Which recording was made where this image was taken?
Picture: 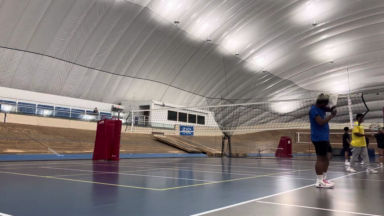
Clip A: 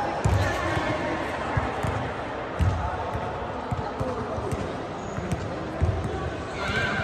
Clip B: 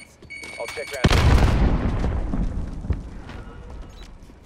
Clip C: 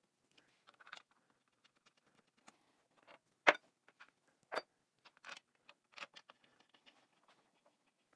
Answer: A